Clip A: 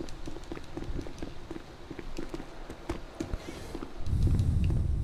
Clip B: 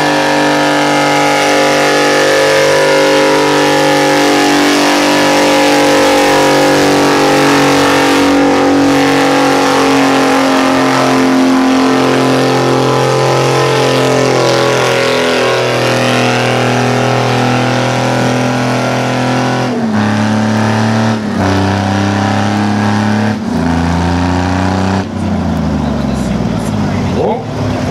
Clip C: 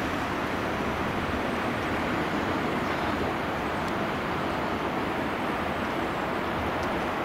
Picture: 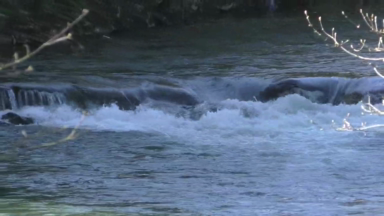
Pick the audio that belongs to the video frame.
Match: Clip C